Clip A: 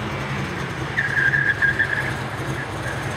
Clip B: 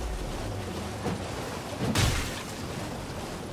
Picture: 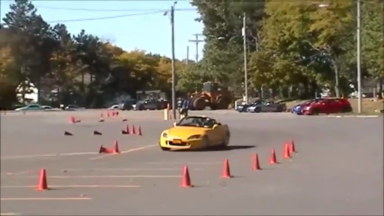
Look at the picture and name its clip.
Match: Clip A